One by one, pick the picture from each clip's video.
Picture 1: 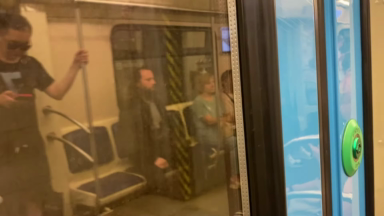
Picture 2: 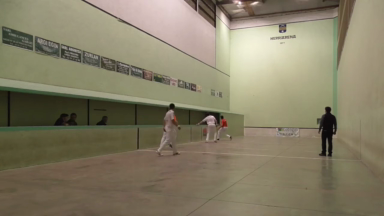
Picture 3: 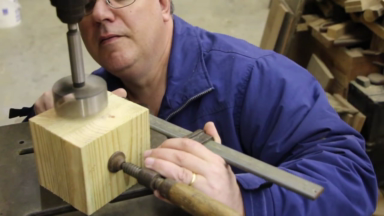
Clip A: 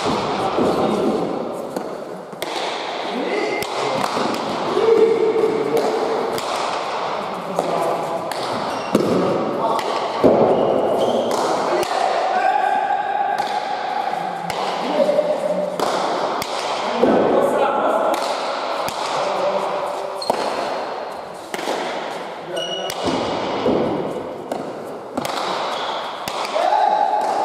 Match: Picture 2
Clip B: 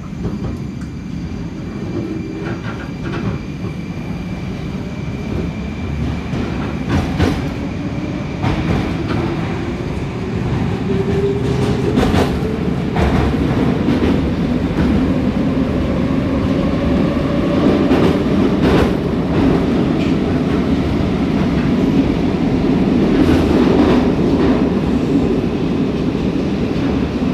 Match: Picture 1